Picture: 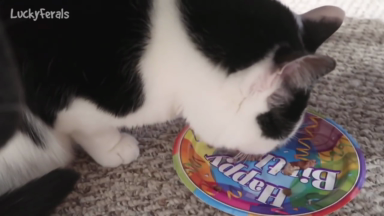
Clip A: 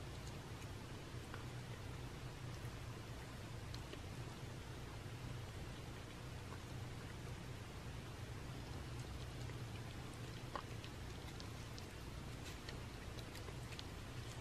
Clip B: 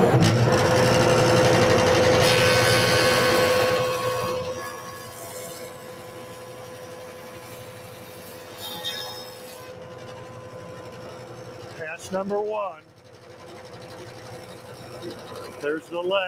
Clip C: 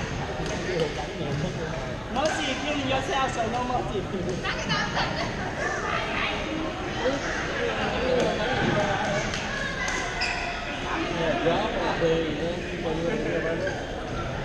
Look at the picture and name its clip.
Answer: A